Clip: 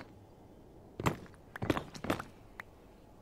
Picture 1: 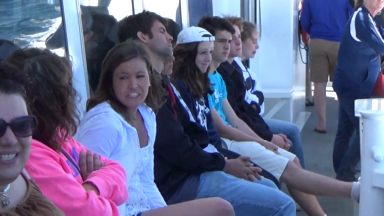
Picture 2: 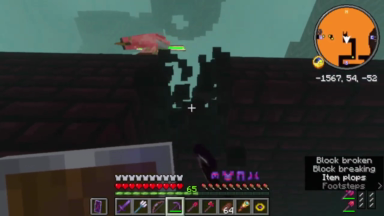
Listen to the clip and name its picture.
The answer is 2